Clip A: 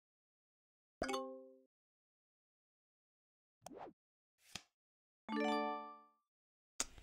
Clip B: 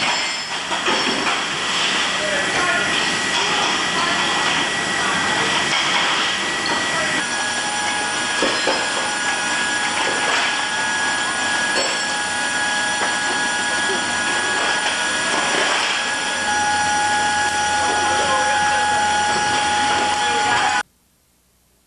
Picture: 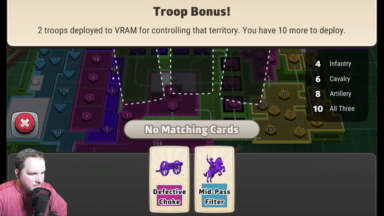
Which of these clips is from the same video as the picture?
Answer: A